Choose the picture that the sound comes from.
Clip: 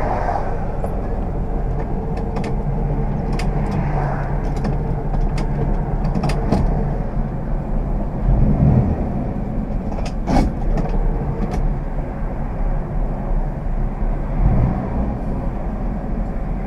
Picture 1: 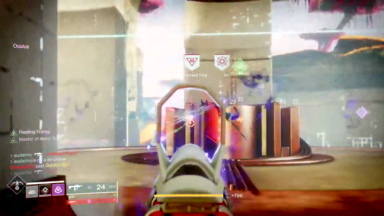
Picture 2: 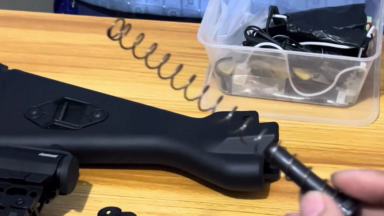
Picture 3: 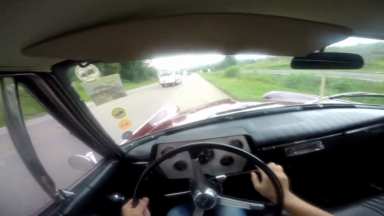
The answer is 3